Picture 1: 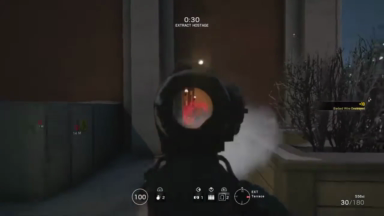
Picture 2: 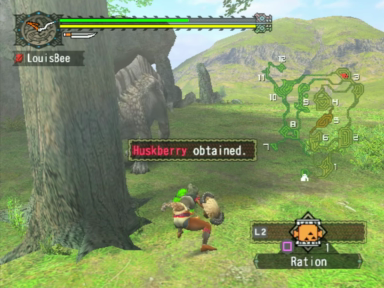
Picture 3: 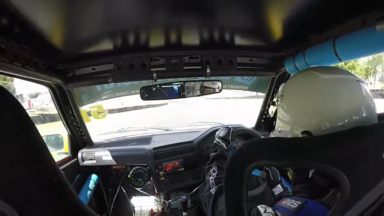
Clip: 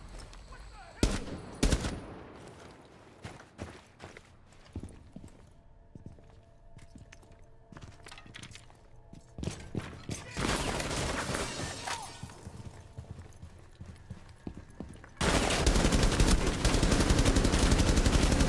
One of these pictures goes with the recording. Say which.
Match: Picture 1